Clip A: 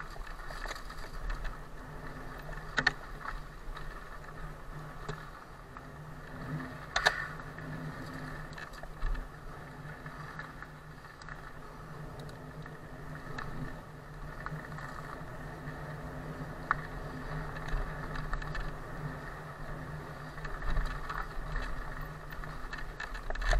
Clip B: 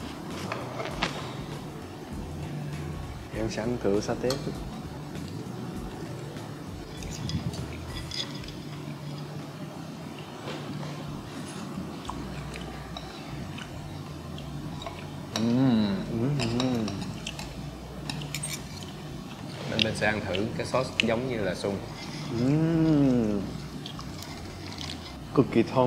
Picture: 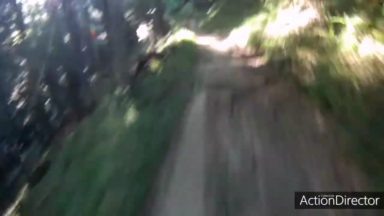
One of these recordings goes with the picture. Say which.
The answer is A